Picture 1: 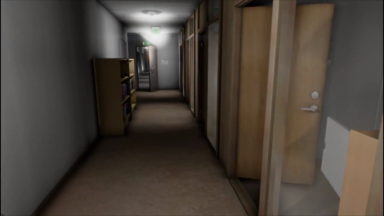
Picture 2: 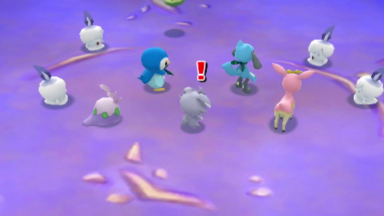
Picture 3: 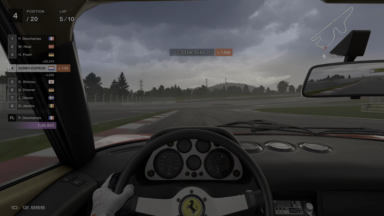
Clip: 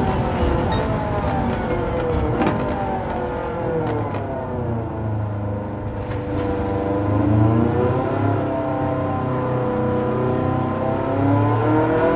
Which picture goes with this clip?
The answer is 3